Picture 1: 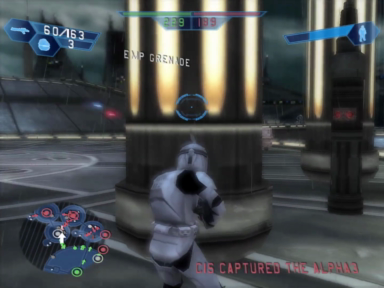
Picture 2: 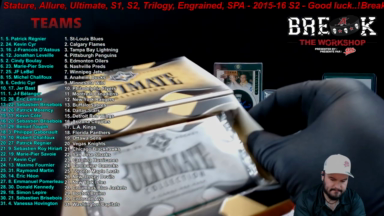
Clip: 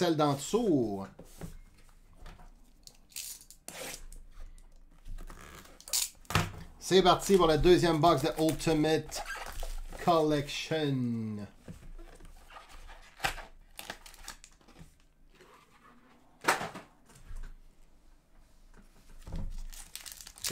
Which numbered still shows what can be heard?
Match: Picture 2